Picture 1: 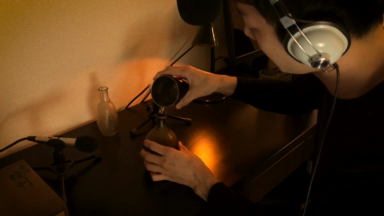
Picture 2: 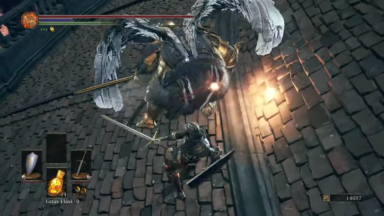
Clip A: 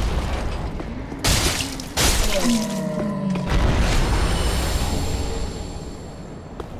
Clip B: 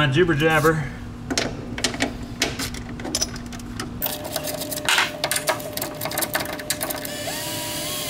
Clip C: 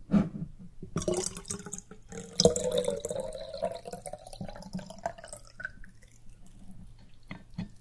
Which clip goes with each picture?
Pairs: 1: C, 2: A